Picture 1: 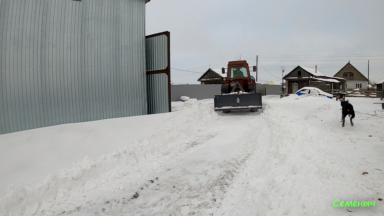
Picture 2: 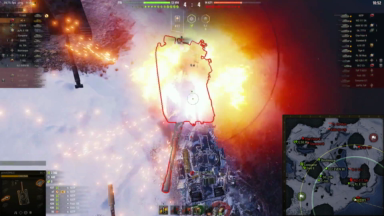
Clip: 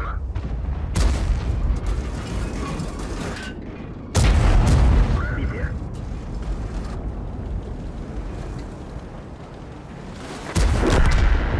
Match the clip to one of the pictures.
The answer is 2